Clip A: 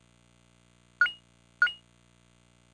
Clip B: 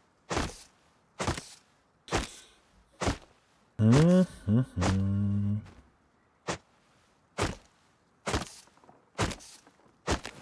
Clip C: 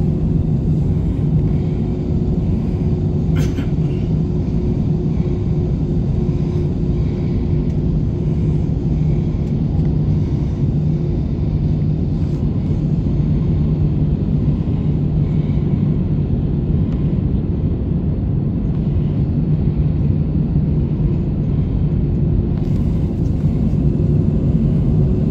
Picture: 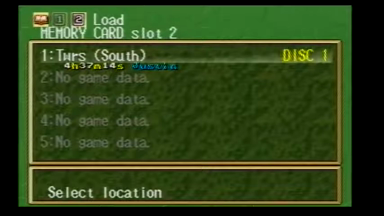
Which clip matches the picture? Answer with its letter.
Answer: A